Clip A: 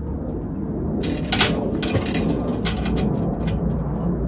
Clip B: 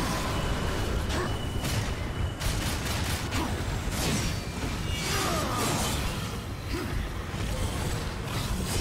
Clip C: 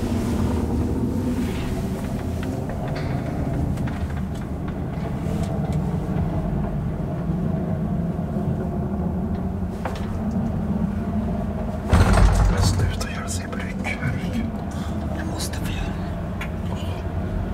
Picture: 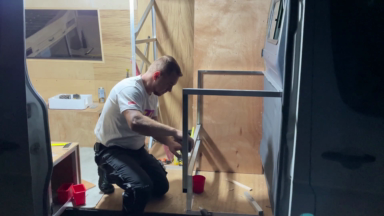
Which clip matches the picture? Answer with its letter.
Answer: A